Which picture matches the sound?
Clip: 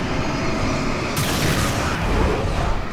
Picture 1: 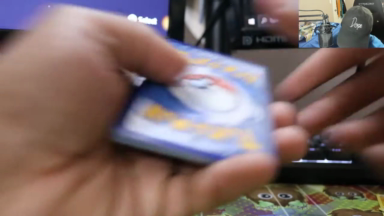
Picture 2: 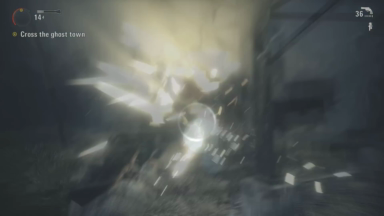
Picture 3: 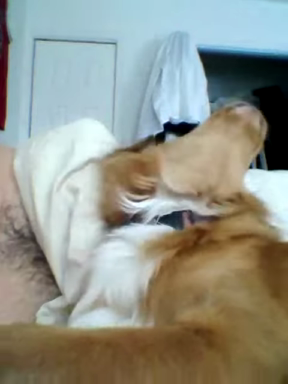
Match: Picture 2